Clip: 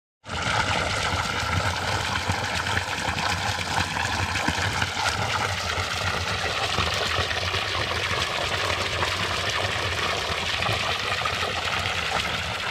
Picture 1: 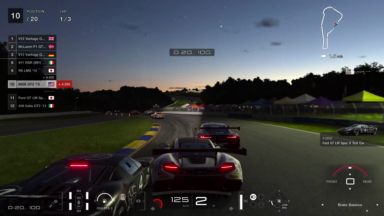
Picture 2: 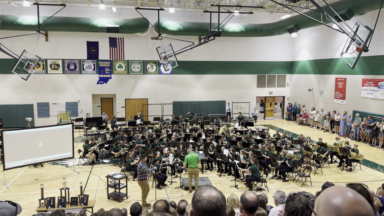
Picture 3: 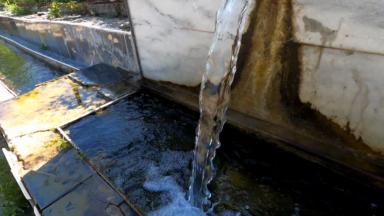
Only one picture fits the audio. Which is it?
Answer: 3